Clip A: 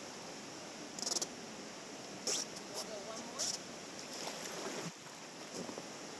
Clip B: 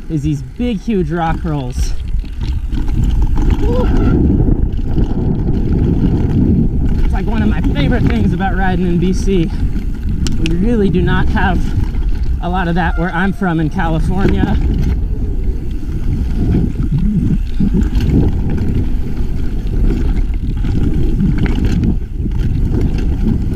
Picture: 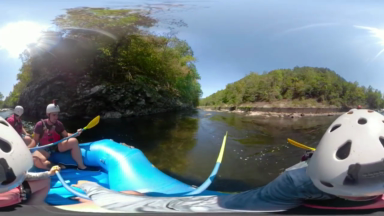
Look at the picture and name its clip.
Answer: A